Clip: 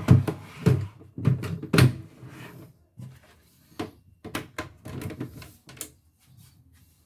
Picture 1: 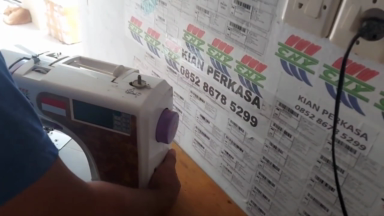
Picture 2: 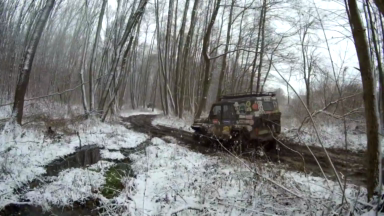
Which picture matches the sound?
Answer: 1